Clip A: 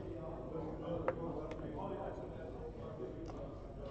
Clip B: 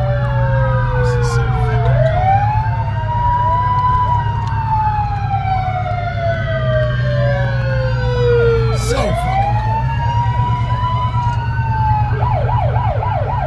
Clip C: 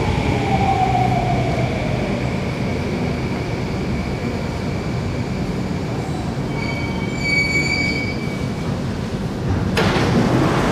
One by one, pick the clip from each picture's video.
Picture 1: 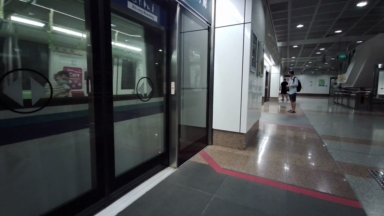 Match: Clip C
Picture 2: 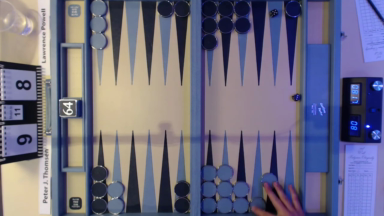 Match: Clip A